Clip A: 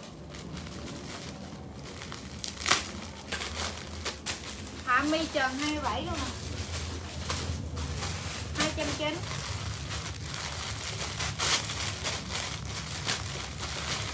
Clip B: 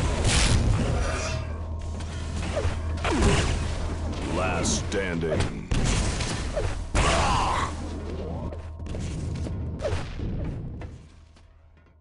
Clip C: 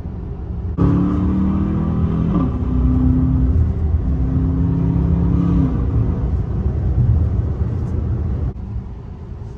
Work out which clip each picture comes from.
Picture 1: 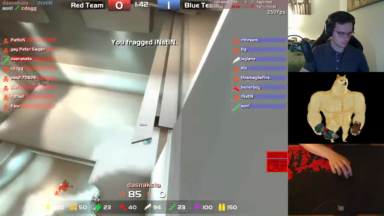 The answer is B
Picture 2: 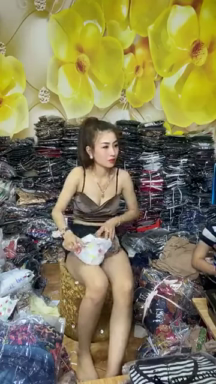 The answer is A